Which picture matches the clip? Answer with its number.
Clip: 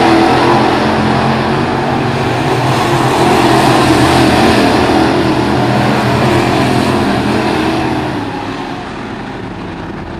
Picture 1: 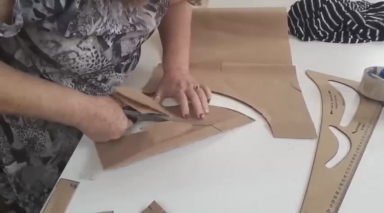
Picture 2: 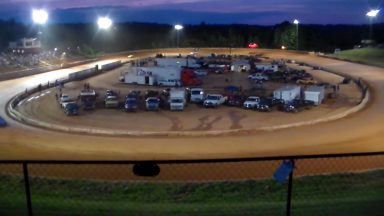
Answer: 2